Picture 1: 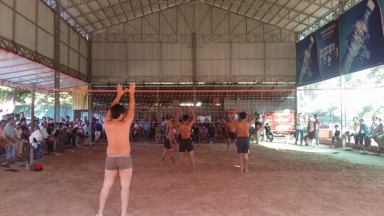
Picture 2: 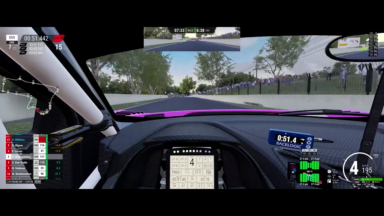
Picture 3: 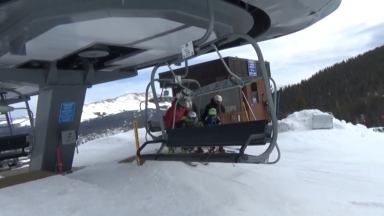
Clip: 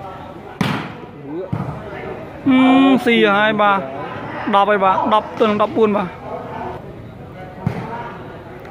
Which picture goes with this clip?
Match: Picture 1